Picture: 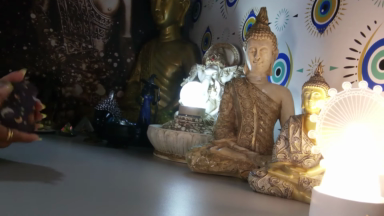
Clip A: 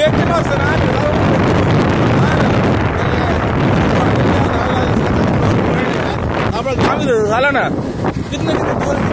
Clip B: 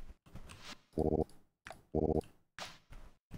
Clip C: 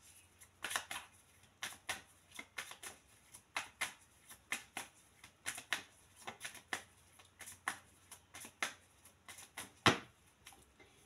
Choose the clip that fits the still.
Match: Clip C